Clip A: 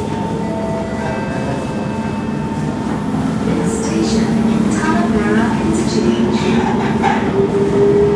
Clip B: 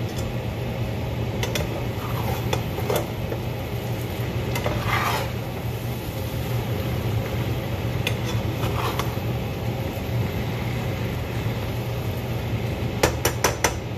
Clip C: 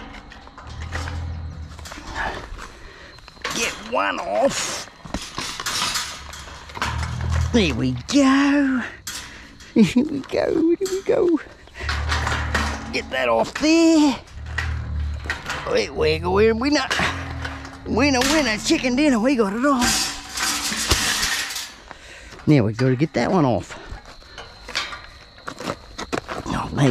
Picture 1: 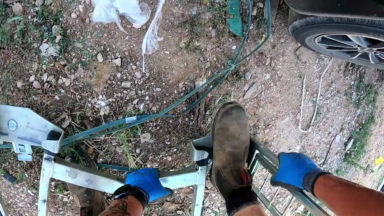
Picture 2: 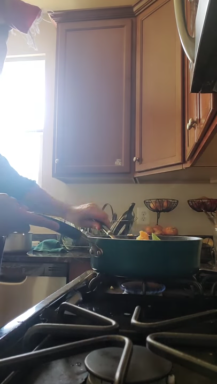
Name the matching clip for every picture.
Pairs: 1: C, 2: B